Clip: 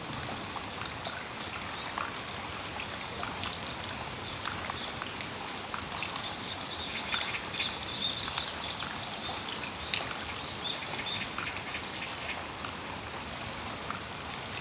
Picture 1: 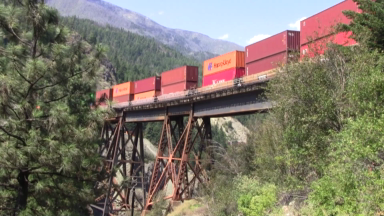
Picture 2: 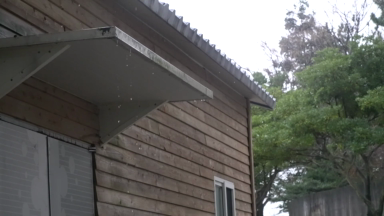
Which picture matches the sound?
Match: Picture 2